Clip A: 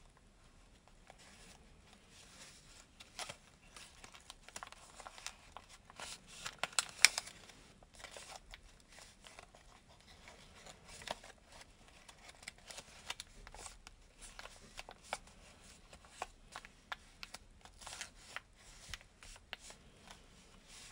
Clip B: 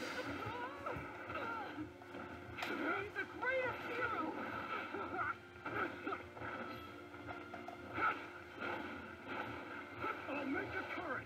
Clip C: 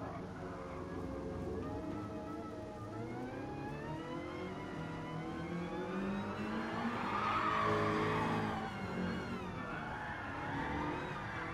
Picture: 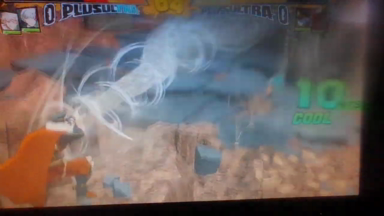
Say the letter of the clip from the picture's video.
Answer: B